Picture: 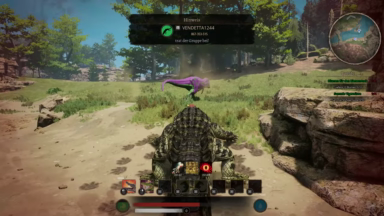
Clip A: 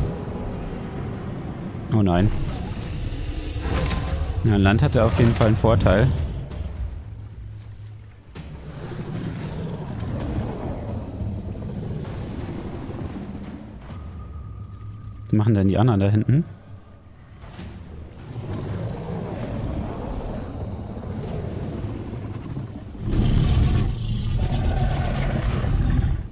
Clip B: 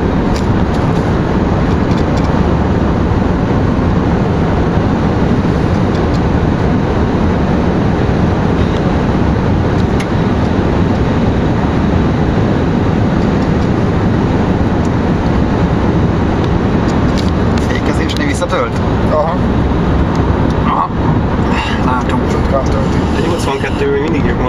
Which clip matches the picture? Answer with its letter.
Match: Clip A